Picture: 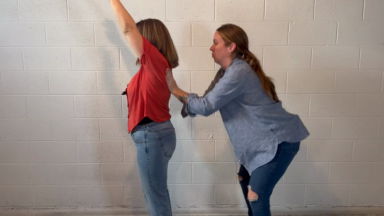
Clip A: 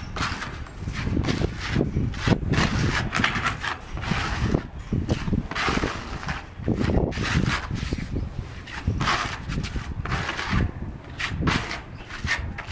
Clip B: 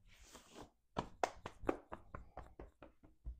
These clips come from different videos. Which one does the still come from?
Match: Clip B